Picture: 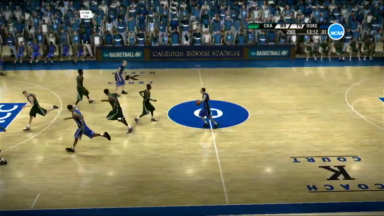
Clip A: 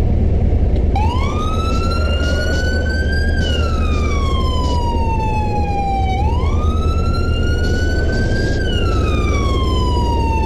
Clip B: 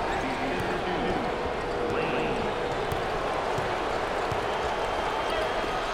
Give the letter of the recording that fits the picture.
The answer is B